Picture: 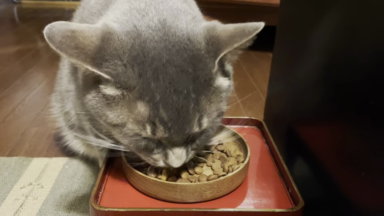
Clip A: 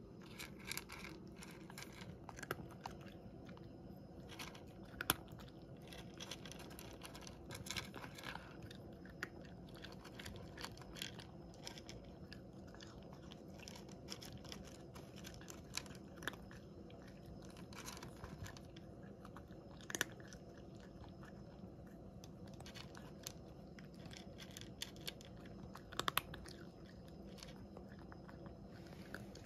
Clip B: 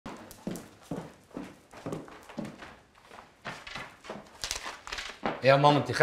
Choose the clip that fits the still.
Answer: A